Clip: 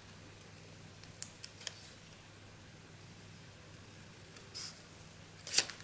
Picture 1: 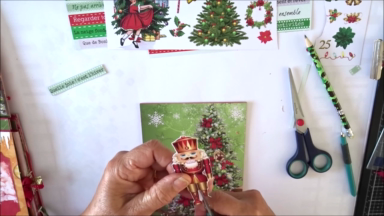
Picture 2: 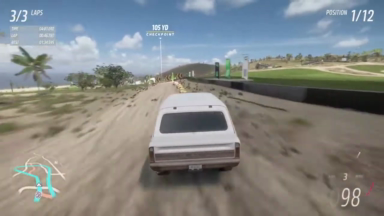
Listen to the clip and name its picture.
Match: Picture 1